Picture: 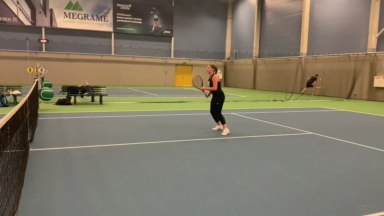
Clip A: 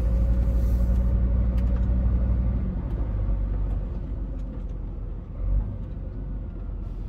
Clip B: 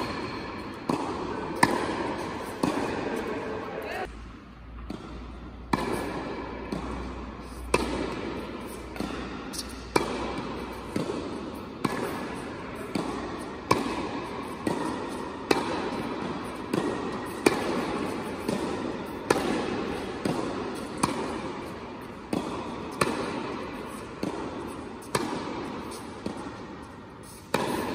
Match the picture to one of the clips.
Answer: B